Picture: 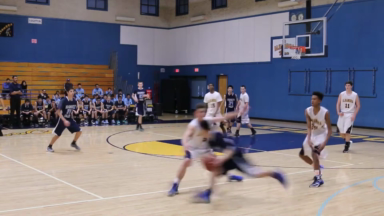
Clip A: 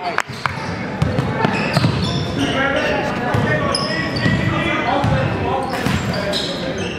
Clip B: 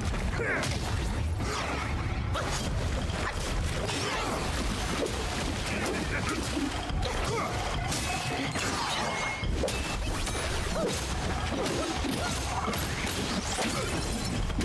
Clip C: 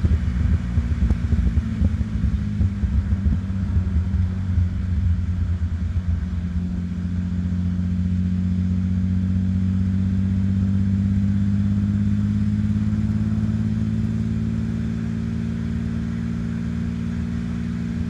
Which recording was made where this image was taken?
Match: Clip A